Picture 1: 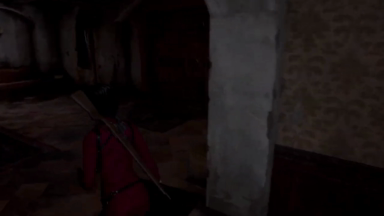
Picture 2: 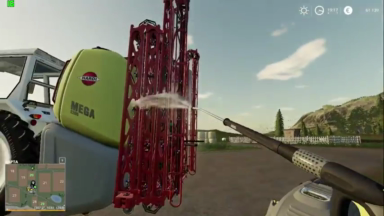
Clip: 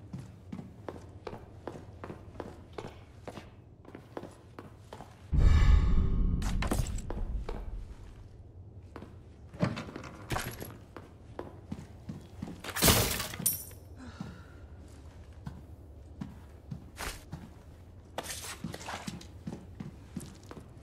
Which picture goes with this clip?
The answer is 1